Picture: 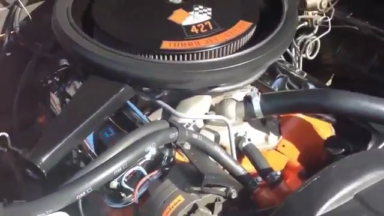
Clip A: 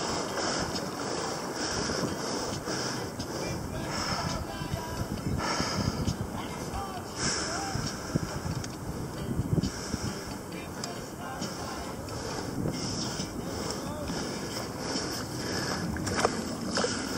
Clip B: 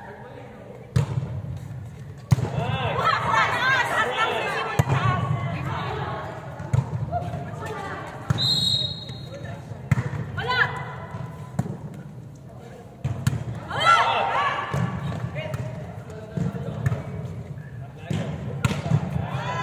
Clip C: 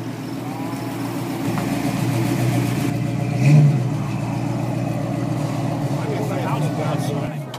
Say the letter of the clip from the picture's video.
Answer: C